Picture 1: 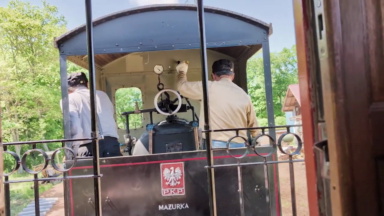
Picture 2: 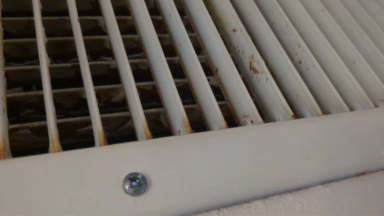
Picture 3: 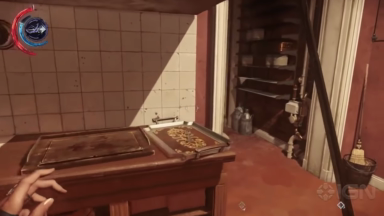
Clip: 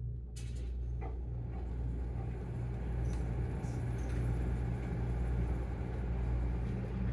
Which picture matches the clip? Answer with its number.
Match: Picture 2